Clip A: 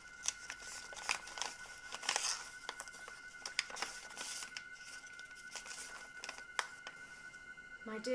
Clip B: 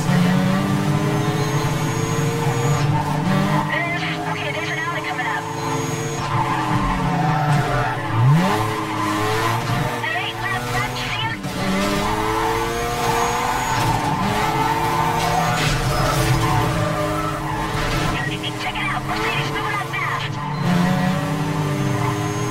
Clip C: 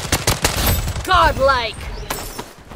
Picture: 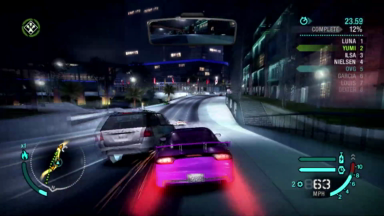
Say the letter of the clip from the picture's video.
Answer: B